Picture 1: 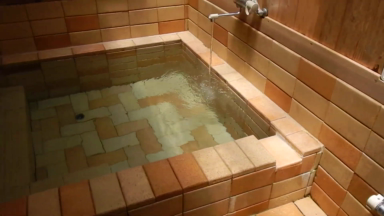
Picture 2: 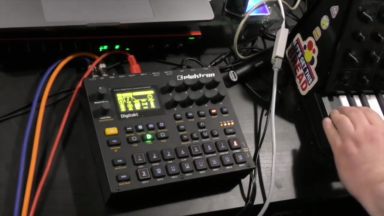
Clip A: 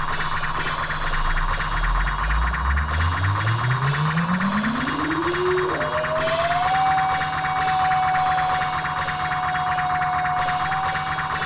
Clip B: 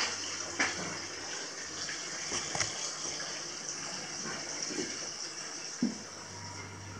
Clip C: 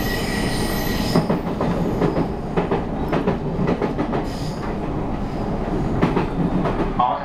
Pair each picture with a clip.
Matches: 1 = B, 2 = A